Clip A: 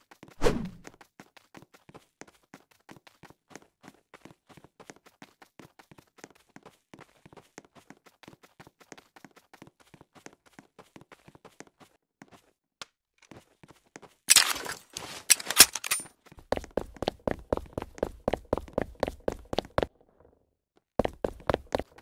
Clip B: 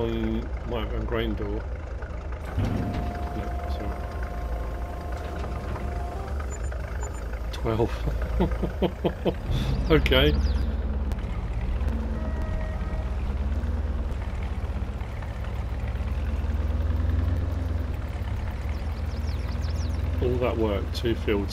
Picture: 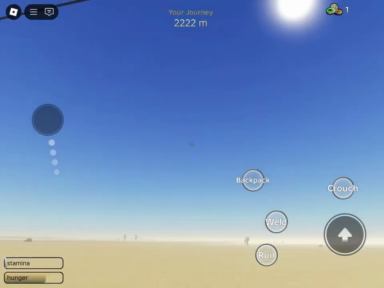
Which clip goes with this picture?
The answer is A